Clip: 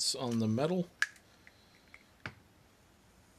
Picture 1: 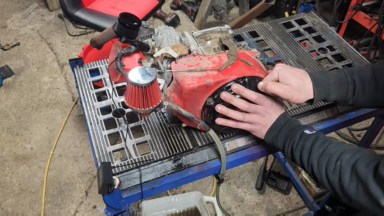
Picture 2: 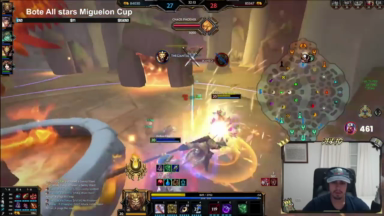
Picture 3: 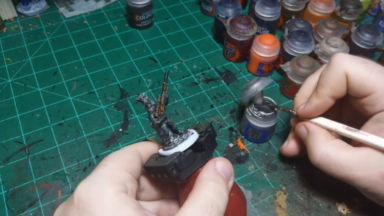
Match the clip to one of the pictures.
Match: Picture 3